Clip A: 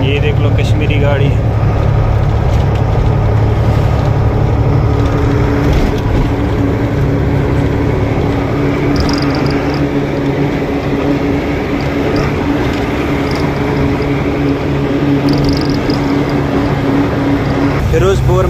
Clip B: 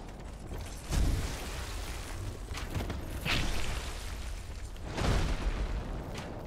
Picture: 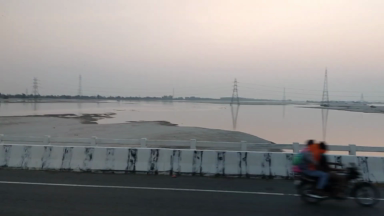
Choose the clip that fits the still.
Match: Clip A